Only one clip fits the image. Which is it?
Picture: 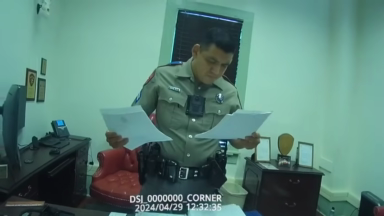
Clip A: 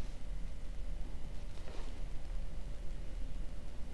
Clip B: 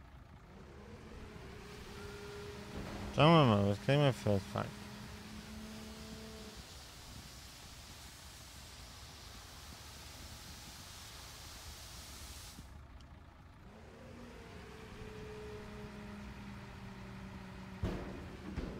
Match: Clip A